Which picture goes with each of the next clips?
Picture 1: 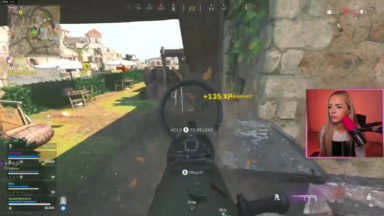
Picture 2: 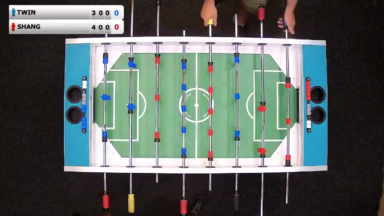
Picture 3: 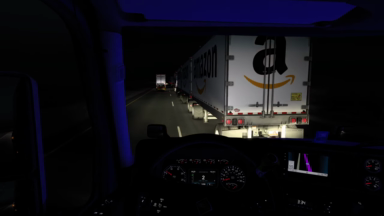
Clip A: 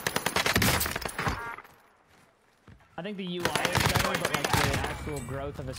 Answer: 1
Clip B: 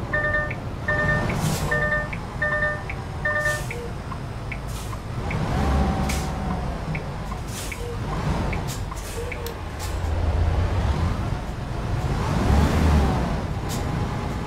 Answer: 3